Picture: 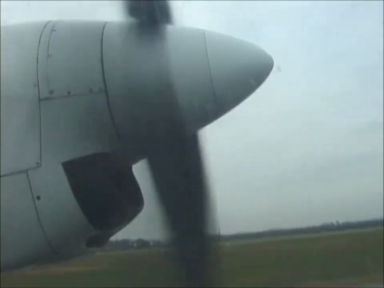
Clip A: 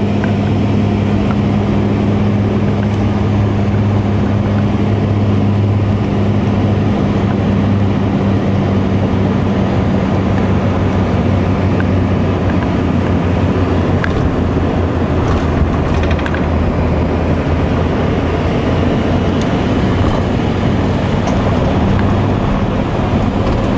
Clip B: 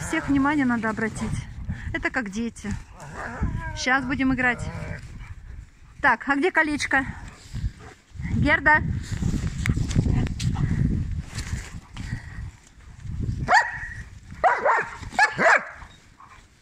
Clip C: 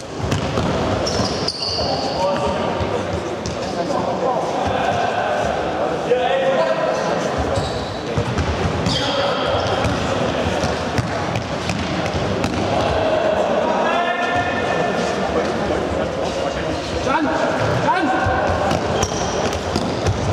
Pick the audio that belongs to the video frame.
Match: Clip A